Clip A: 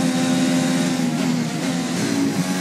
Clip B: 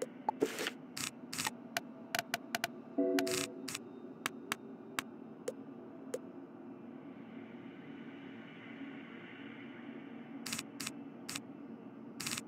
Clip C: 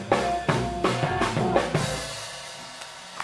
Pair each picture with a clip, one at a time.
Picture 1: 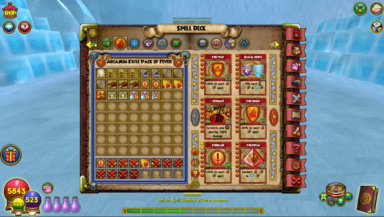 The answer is B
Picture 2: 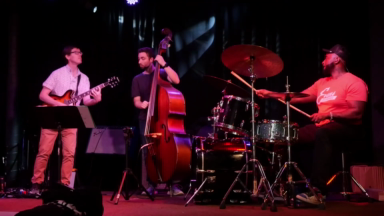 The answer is C